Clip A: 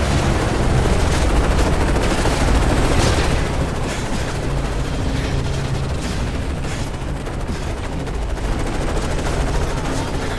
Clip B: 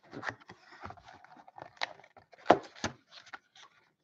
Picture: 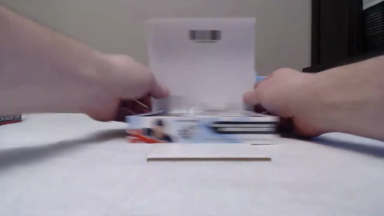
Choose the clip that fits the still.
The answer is B